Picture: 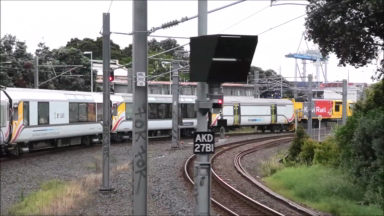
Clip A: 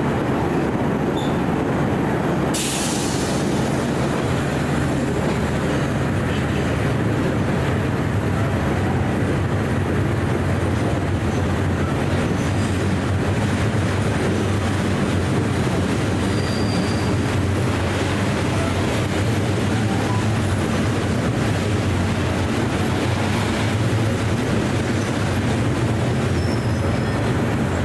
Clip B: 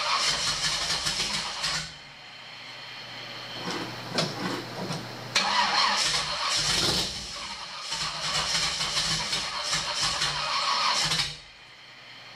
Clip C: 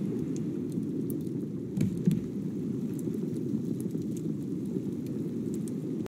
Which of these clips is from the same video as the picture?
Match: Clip A